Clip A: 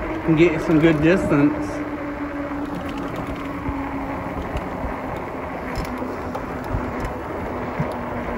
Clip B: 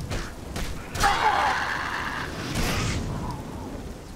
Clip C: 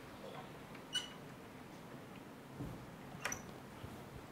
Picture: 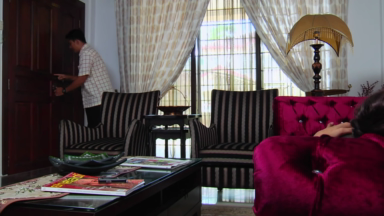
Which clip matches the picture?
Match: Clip C